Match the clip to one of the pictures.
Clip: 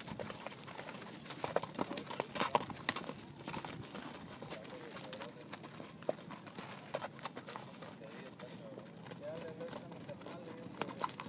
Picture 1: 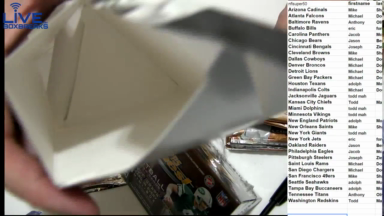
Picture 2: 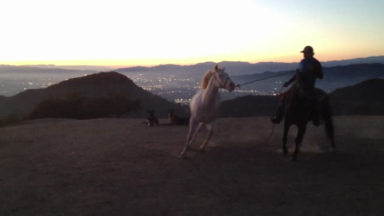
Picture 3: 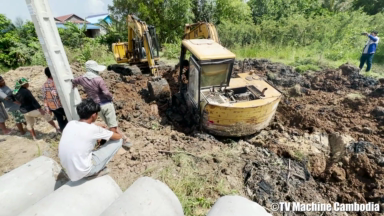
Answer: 2